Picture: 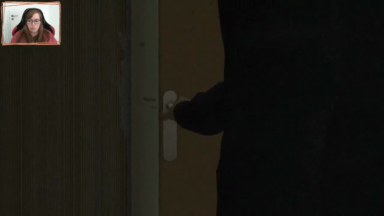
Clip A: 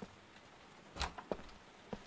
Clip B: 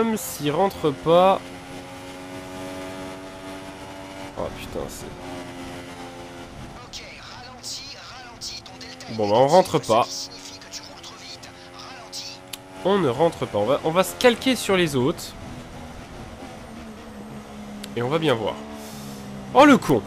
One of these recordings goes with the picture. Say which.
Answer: A